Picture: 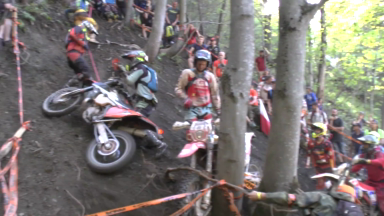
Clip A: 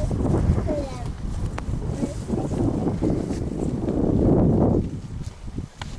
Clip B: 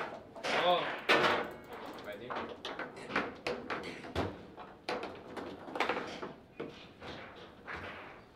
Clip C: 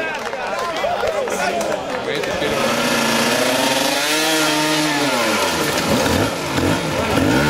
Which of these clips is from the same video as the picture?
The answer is C